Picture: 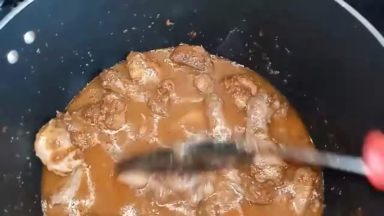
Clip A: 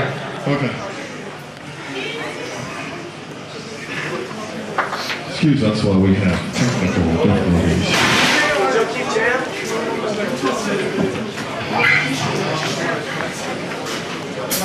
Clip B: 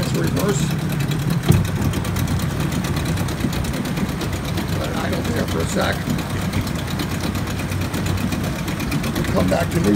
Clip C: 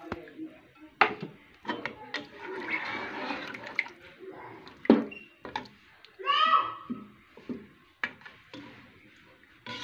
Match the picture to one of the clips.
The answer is C